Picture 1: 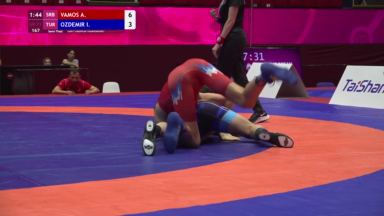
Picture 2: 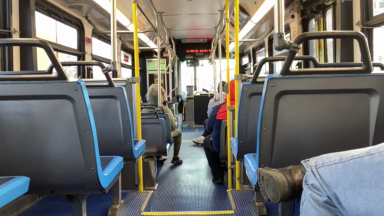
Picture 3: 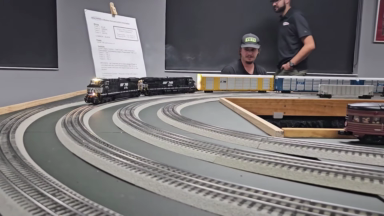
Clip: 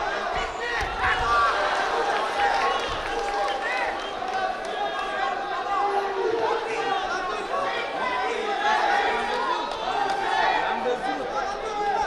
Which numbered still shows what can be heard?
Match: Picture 1